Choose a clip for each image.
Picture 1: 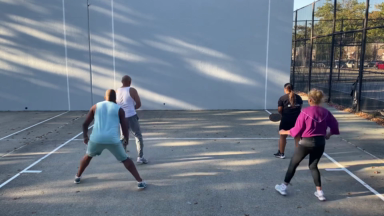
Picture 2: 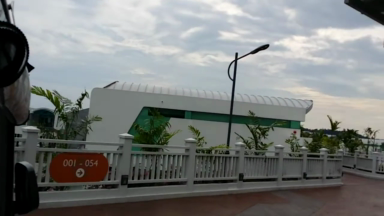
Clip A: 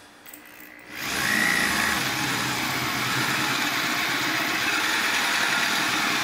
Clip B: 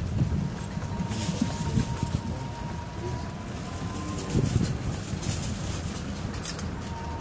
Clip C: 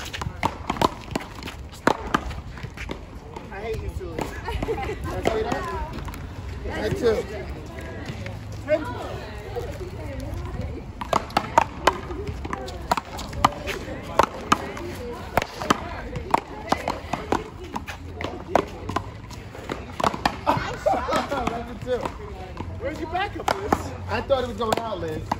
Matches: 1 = C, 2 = B